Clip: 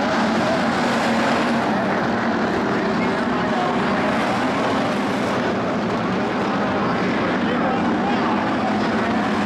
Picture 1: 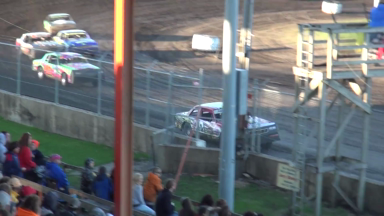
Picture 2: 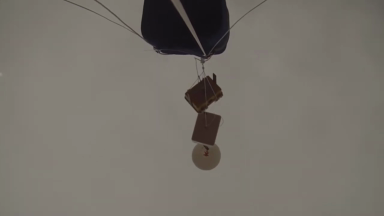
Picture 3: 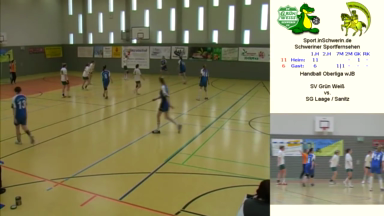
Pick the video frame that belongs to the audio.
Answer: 1